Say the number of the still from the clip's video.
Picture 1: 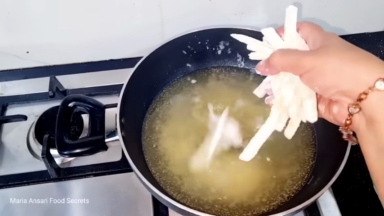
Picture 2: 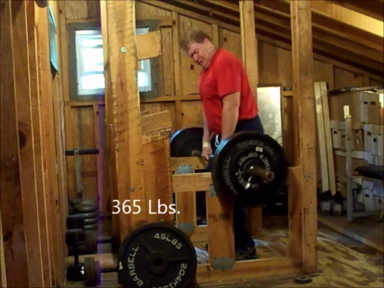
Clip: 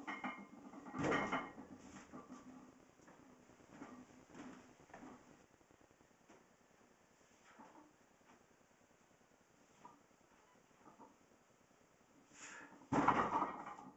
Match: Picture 2